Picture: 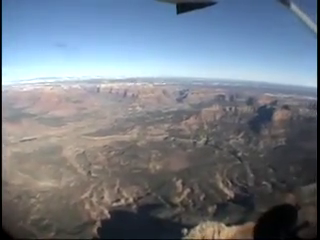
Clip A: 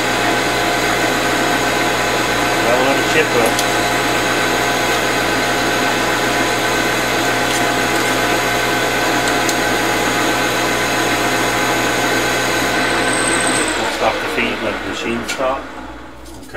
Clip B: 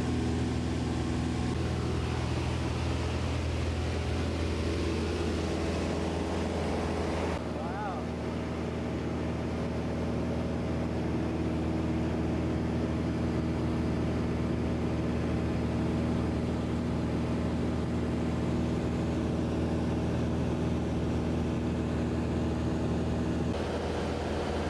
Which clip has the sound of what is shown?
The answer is B